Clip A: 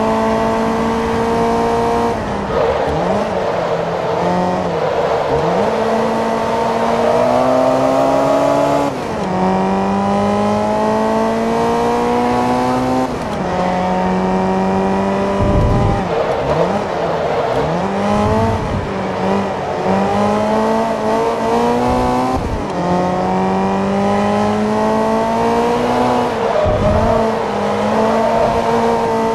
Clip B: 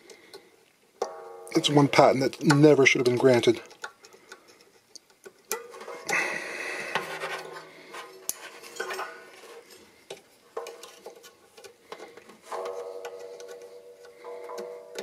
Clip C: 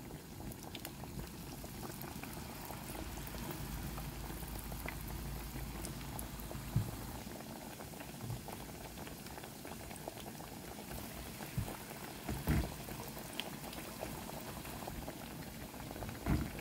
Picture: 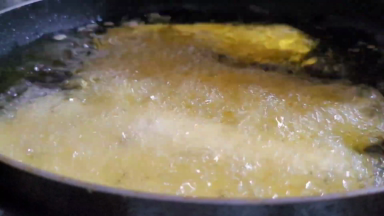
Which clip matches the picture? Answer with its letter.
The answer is C